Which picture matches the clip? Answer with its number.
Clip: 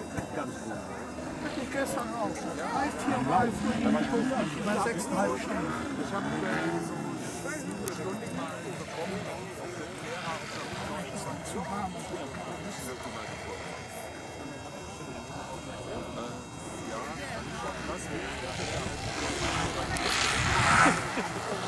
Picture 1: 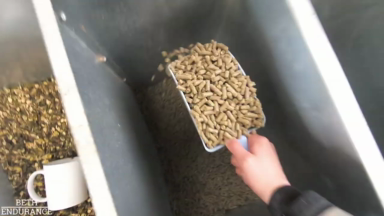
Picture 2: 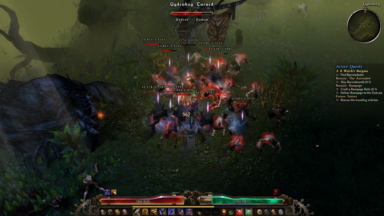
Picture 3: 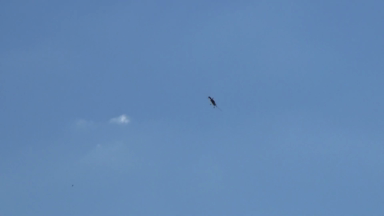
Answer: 3